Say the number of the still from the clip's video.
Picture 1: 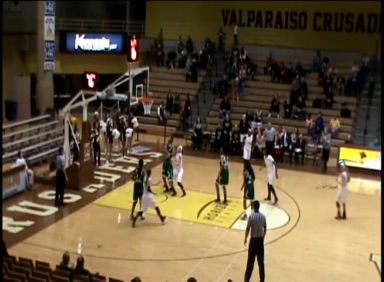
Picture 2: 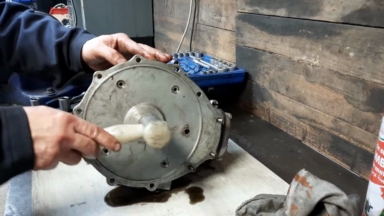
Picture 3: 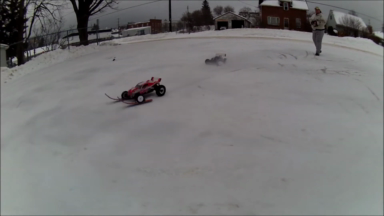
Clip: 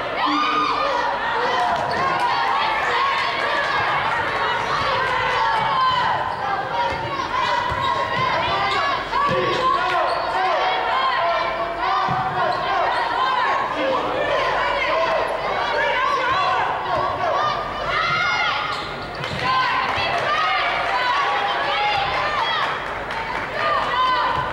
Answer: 1